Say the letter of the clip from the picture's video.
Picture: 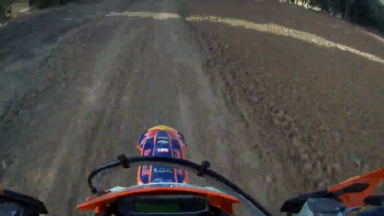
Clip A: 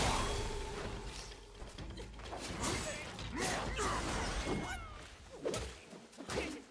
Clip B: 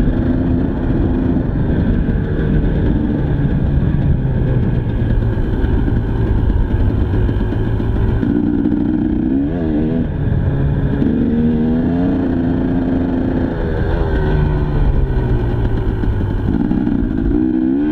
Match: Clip B